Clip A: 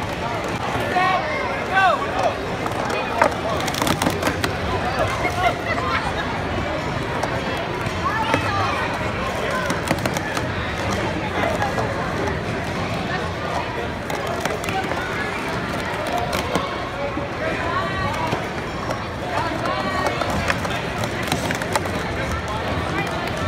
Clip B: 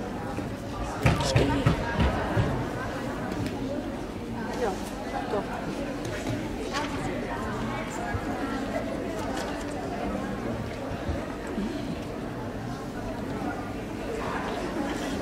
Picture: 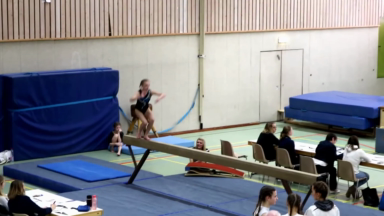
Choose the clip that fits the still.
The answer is B